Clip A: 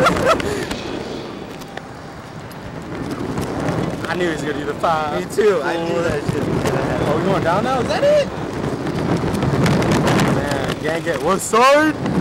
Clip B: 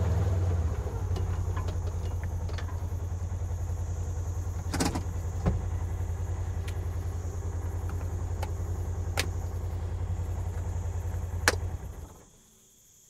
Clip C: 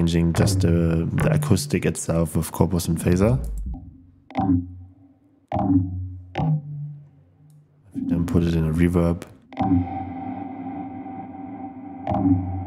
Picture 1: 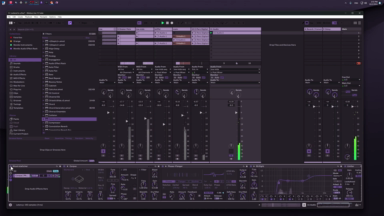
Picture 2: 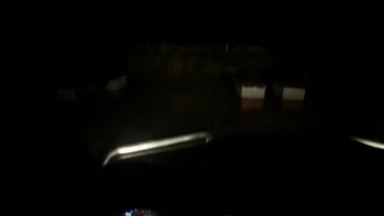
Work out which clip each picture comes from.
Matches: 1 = C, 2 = B